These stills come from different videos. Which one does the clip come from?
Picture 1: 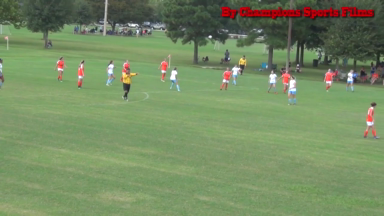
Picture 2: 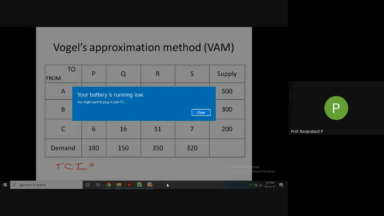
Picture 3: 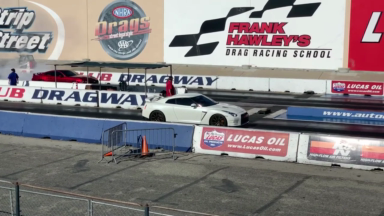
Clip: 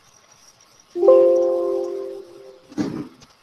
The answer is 2